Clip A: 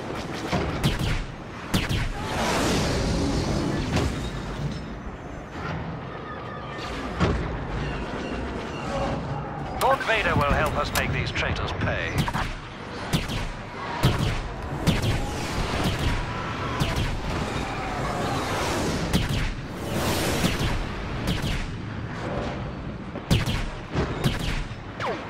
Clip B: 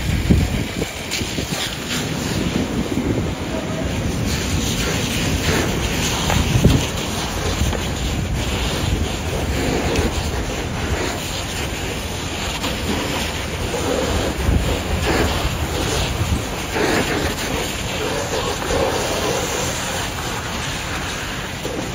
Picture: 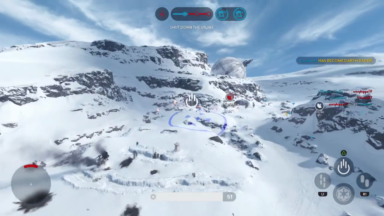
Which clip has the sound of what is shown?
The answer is A